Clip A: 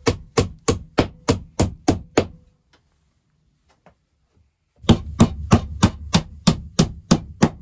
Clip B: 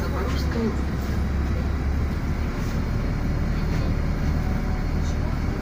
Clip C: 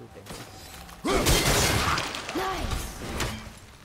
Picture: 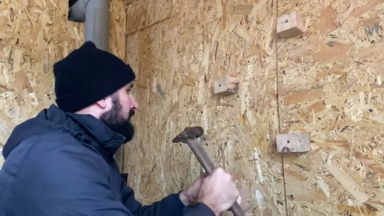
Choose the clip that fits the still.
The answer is A